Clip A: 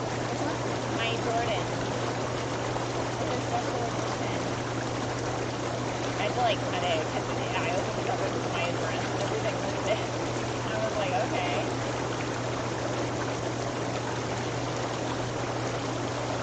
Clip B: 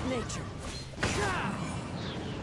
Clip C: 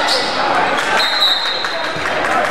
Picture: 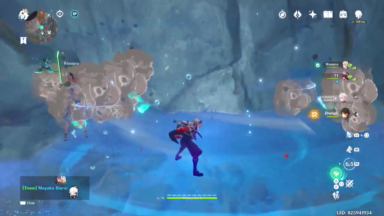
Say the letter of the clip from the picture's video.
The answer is B